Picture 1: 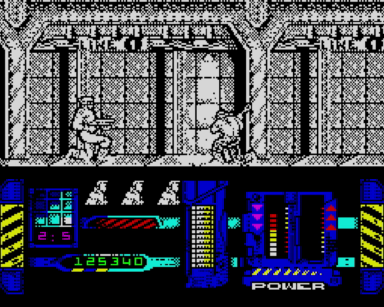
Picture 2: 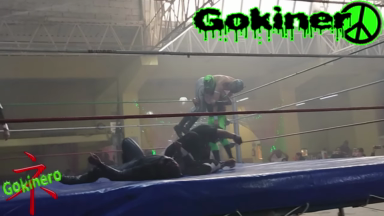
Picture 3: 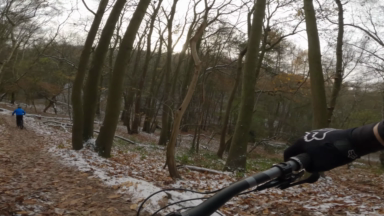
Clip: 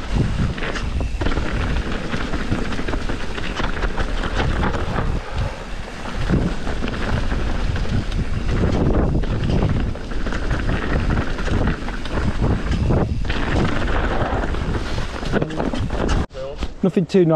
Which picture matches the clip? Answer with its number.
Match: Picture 3